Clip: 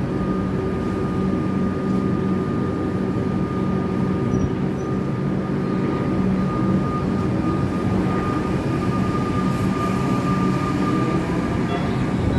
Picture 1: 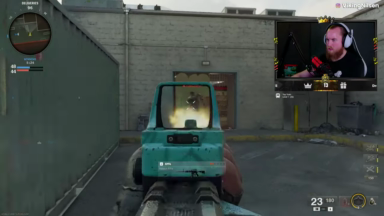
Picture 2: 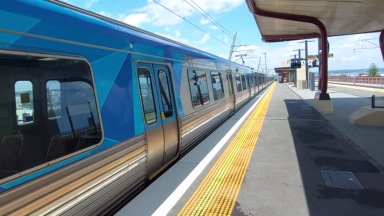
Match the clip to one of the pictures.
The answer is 2